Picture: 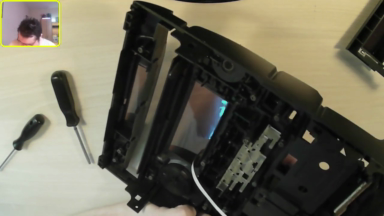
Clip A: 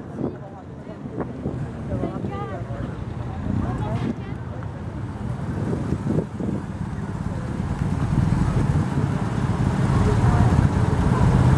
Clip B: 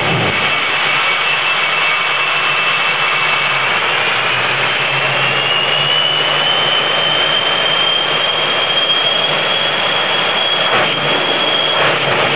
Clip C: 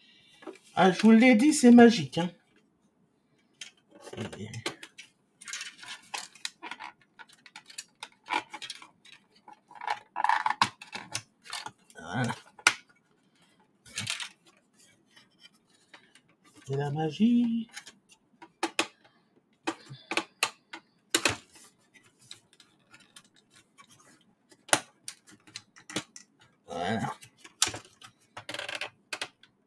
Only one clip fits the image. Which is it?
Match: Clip C